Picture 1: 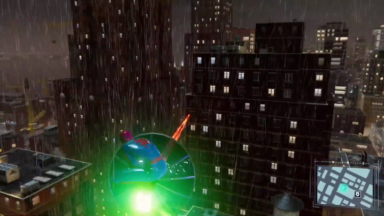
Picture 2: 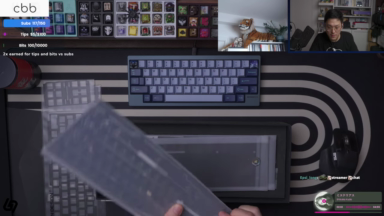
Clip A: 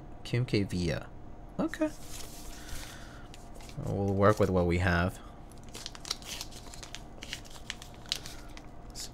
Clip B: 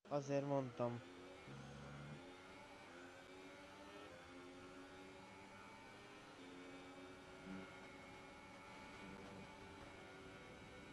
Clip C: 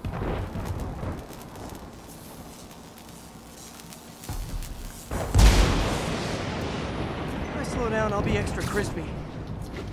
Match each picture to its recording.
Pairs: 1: C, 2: A